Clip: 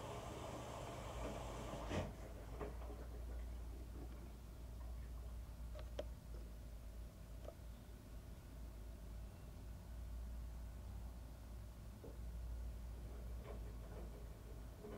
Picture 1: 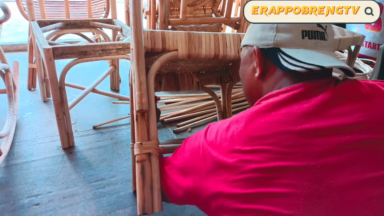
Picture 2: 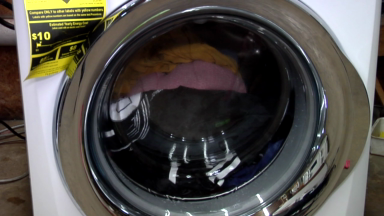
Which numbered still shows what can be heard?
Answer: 2